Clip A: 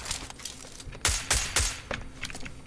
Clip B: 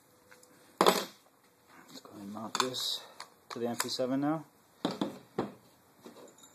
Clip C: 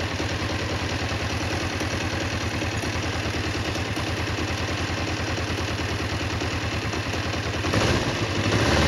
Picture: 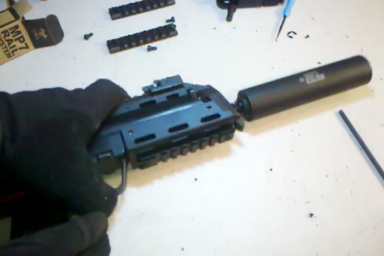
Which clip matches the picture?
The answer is B